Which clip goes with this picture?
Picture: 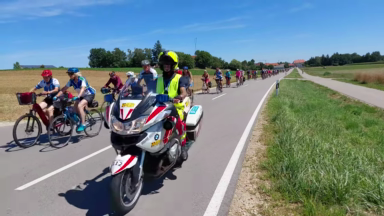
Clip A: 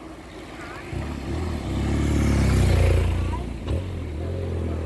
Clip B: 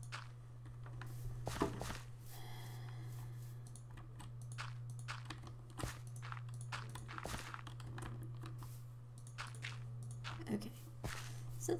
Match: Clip A